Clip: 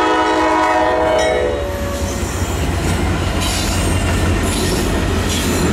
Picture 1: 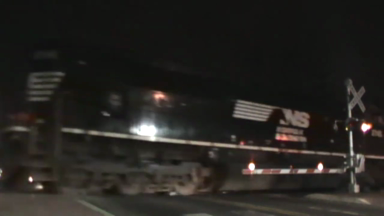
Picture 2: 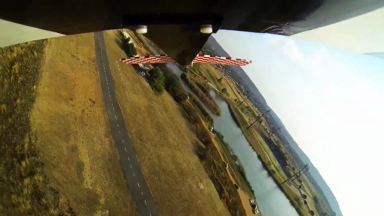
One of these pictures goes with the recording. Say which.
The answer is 1